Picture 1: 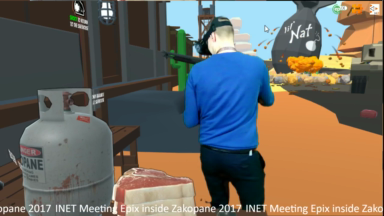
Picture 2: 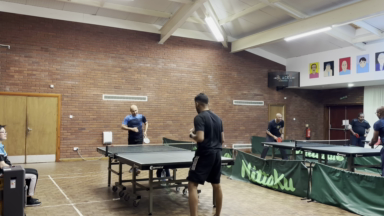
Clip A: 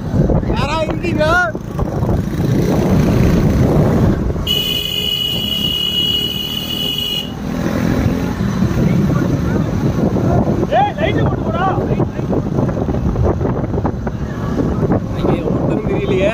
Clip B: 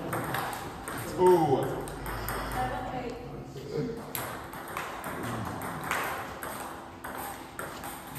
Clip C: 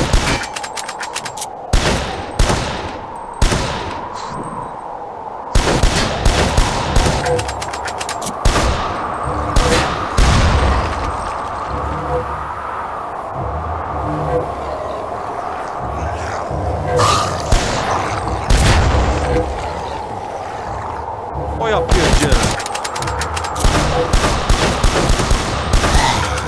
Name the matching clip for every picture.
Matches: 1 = C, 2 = B